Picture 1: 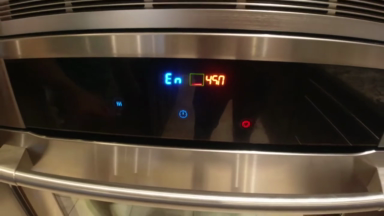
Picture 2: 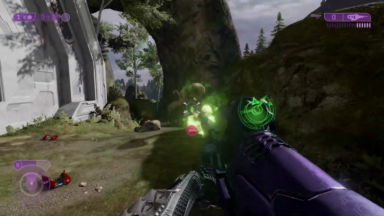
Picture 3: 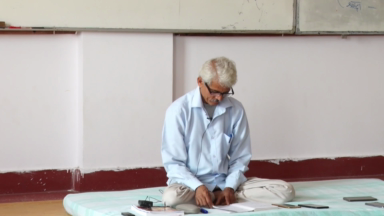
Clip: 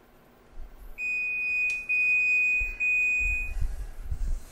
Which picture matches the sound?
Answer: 1